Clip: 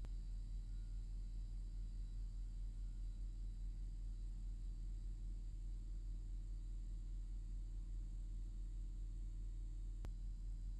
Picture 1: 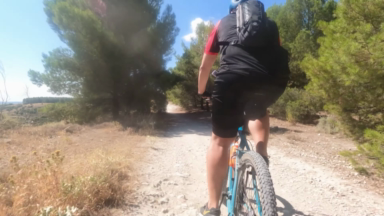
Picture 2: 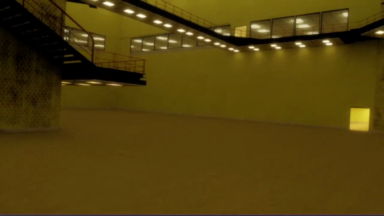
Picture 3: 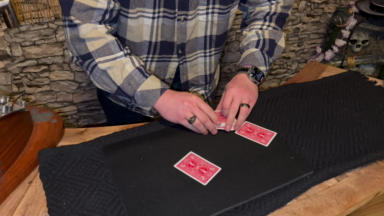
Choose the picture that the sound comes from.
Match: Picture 2